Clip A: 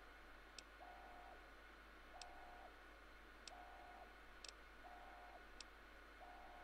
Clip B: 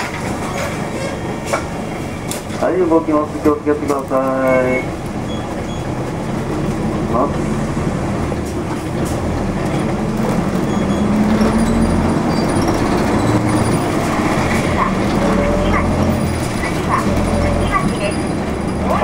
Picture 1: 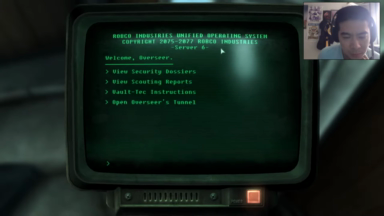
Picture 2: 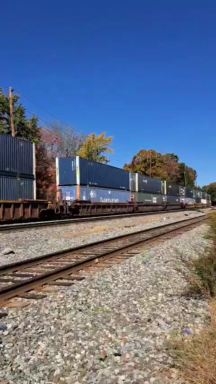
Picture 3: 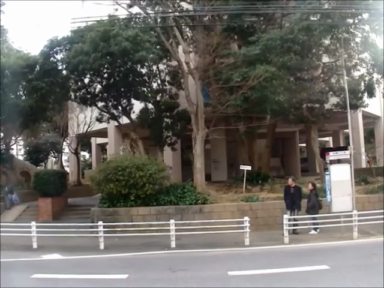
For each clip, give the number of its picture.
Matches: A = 1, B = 3